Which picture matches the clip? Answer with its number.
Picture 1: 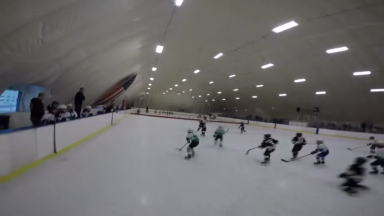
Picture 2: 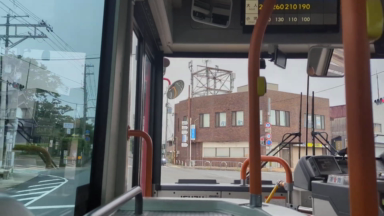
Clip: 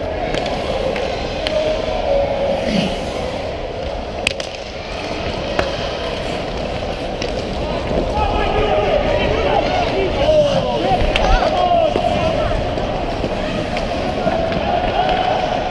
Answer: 1